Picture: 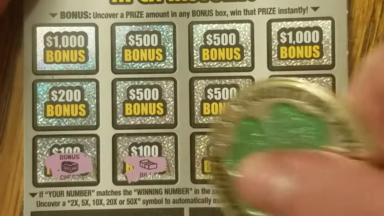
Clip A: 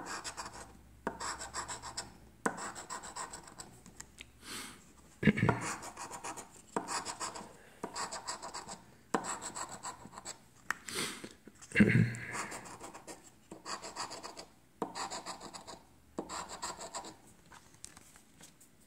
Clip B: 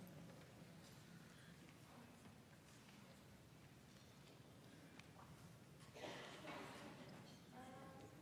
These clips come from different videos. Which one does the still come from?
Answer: A